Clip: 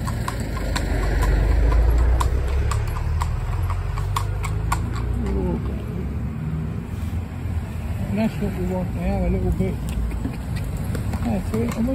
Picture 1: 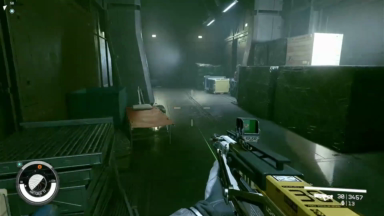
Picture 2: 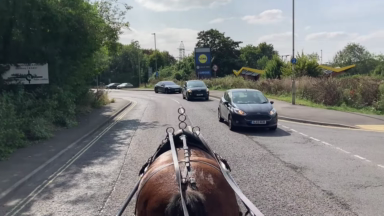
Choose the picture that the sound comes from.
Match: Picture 2